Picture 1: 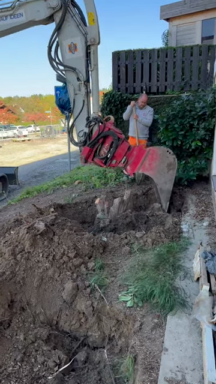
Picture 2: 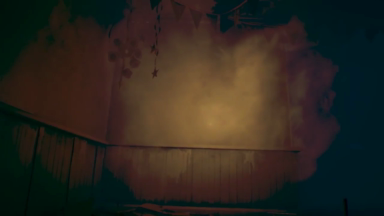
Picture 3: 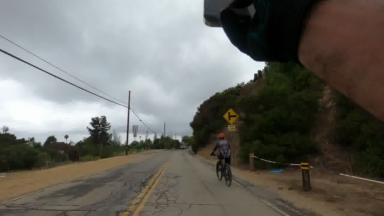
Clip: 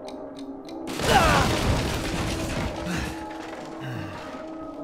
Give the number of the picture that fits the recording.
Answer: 2